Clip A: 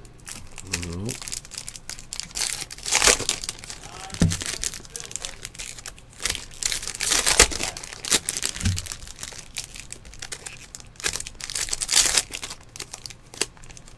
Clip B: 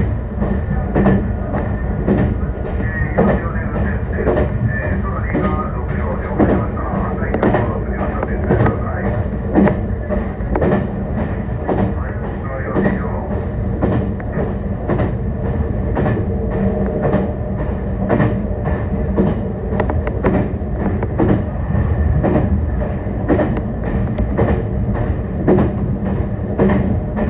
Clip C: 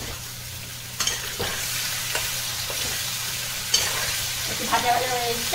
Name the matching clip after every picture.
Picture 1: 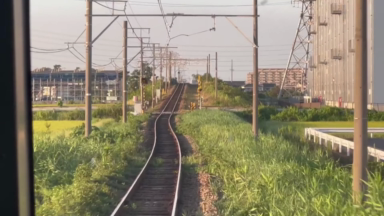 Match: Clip B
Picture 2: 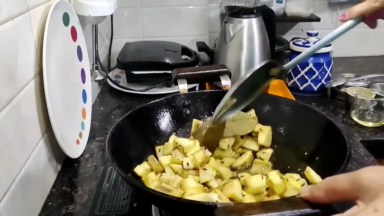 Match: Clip C